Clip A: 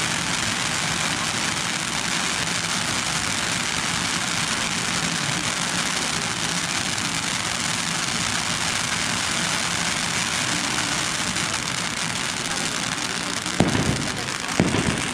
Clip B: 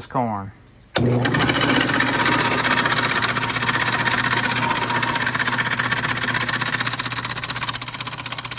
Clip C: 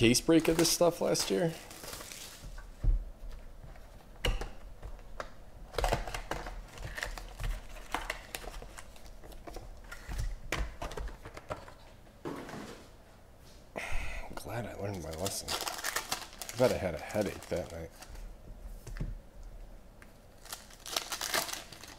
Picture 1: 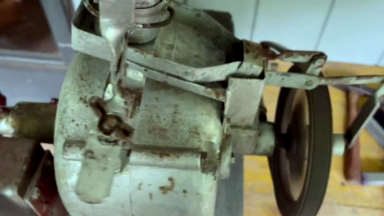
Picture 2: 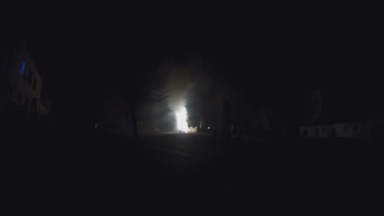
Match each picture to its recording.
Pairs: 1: B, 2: A